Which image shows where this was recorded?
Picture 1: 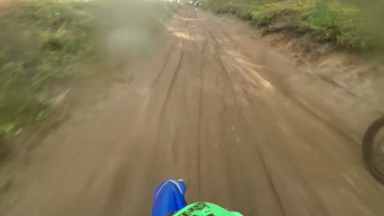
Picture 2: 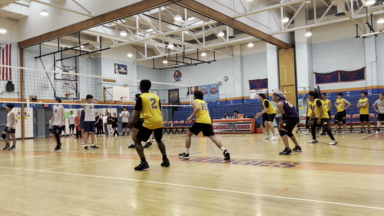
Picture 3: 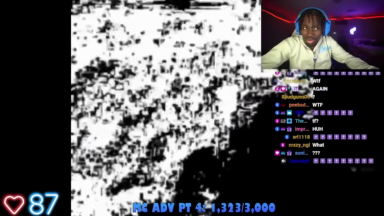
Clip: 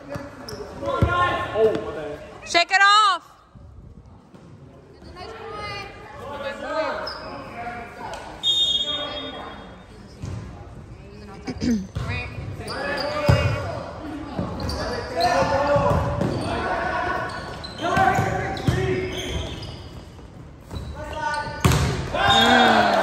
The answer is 2